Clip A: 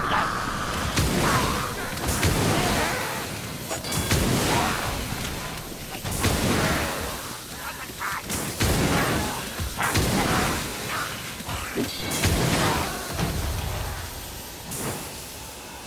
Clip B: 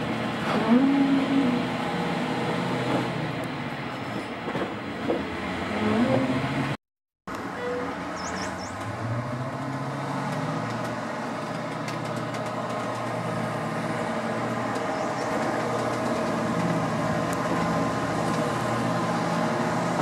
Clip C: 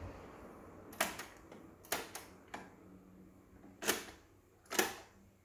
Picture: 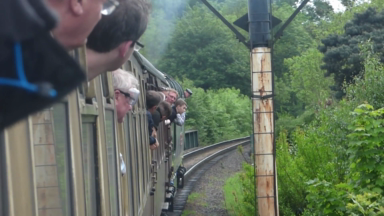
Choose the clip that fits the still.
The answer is B